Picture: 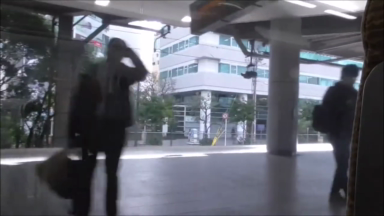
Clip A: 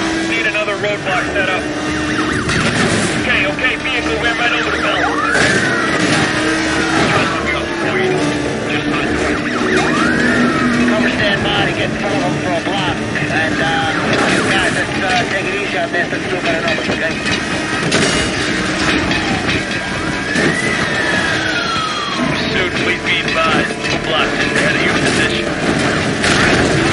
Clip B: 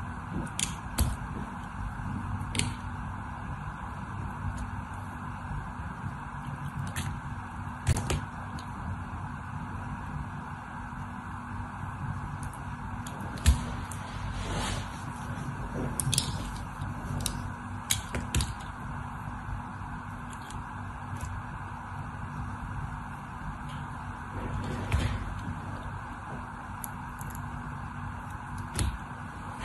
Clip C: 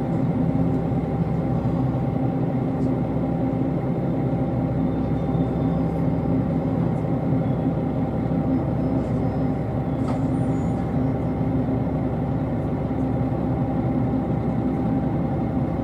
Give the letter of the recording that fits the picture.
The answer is C